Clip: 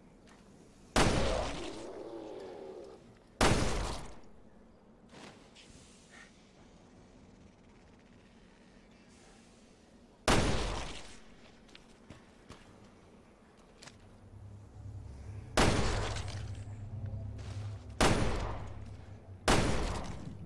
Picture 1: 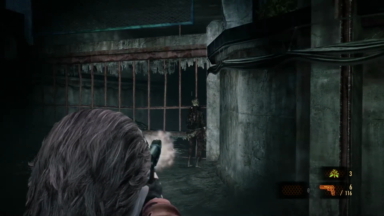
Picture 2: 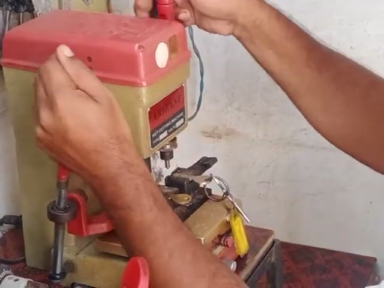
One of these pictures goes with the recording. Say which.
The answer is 1